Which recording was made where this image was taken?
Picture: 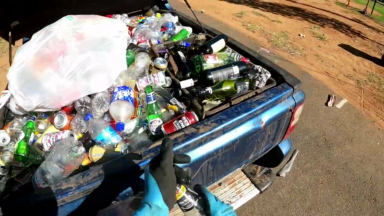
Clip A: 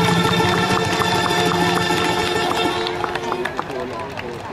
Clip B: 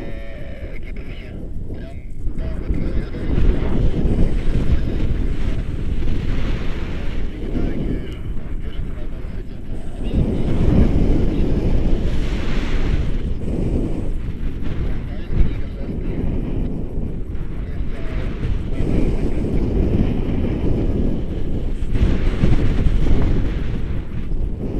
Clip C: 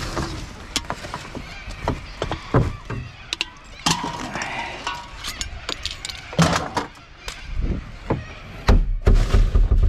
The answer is C